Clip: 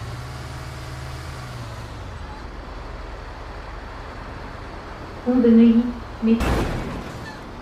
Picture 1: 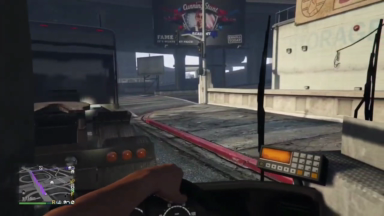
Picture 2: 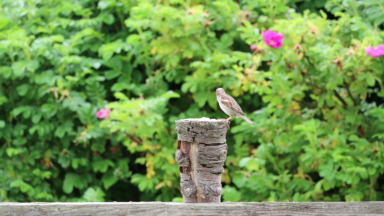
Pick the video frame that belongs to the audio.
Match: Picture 1